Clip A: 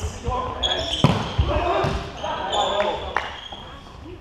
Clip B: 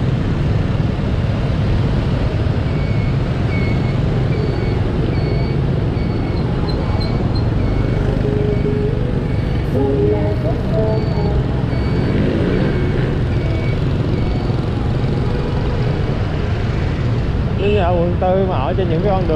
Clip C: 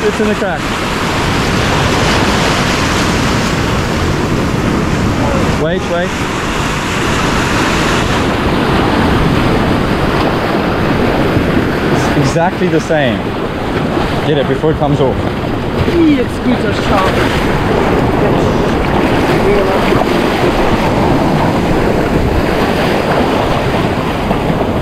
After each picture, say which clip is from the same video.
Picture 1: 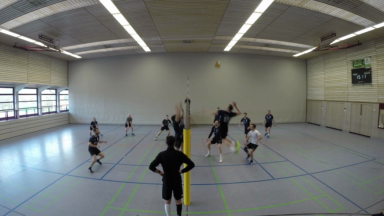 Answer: A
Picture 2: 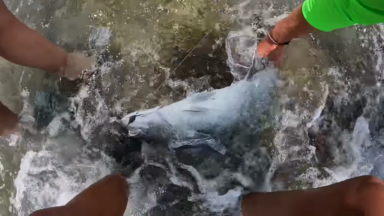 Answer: C